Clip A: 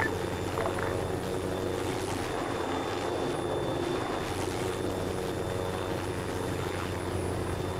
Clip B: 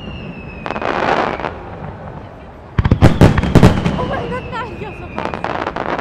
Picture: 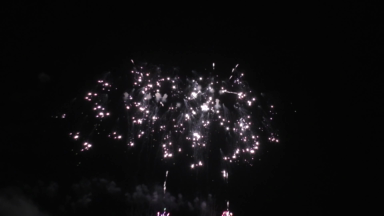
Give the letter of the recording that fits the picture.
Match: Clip B